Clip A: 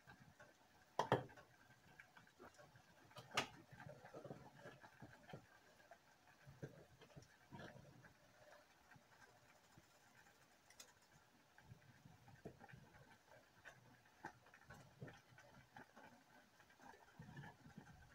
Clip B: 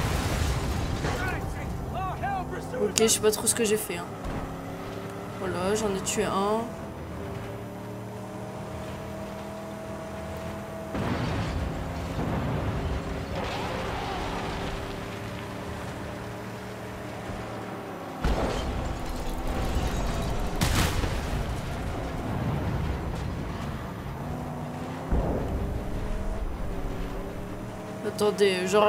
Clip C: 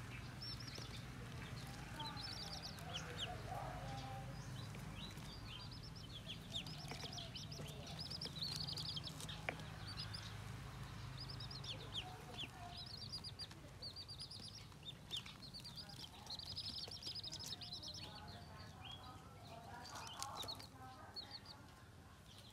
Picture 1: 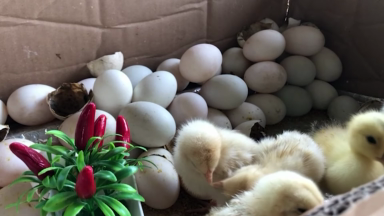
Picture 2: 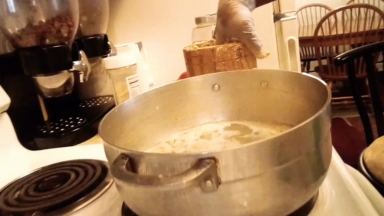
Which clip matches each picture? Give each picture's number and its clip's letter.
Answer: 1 C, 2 A